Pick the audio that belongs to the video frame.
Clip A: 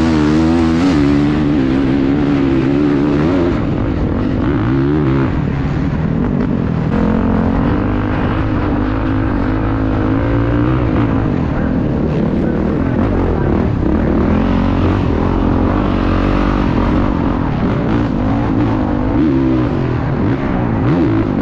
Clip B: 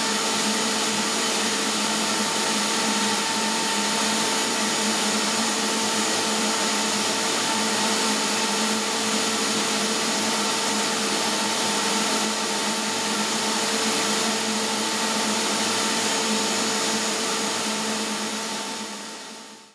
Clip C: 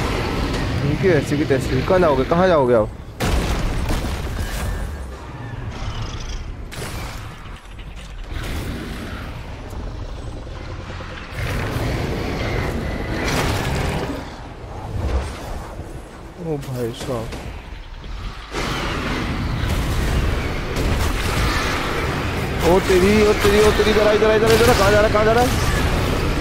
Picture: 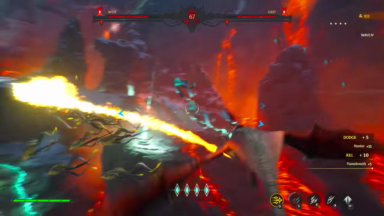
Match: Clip C